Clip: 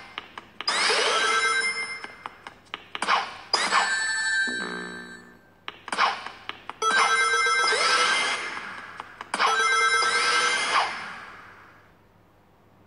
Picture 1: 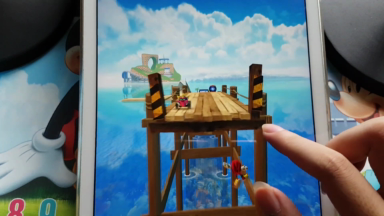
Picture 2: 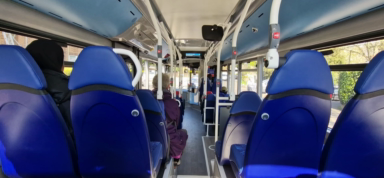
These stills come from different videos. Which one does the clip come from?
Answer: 1